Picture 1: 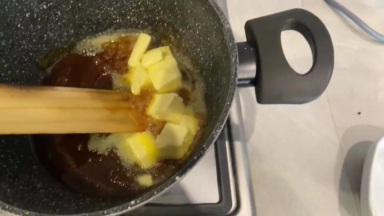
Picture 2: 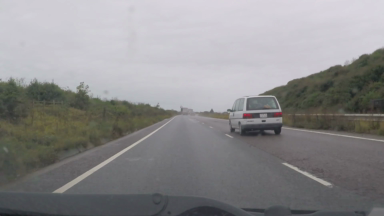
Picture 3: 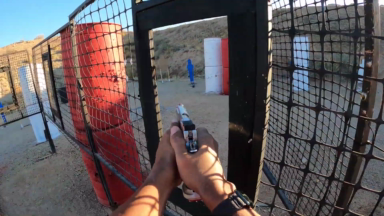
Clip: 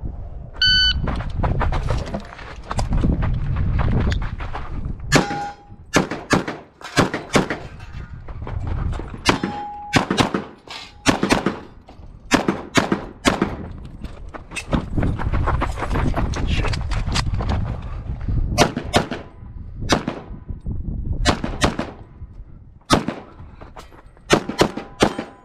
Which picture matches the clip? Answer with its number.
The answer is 3